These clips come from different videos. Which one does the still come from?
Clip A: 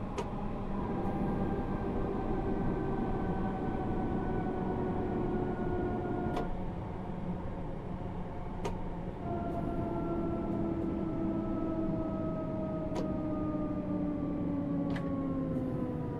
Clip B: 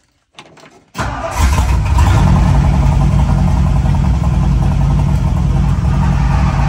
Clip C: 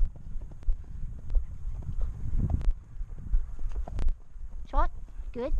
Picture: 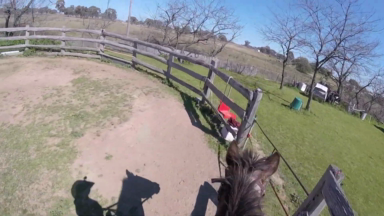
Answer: C